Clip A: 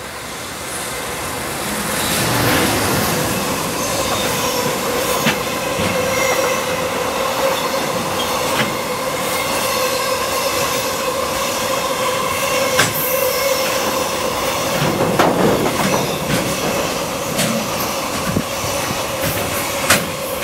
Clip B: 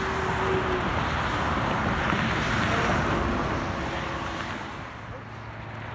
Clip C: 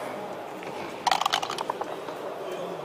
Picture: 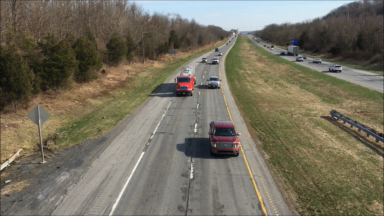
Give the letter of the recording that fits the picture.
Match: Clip B